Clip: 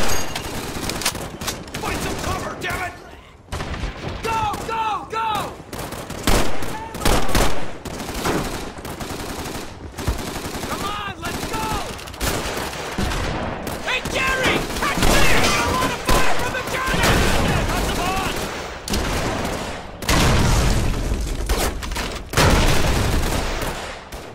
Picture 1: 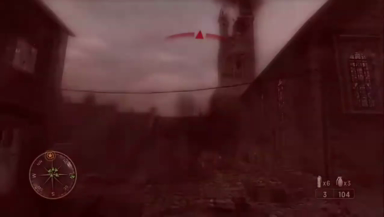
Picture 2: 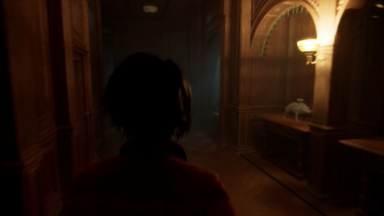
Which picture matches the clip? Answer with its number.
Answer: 1